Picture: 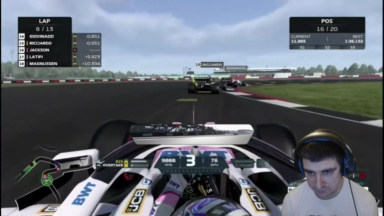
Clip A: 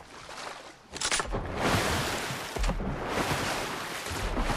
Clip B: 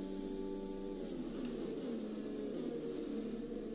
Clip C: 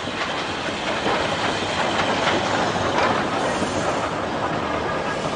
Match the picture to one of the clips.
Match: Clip B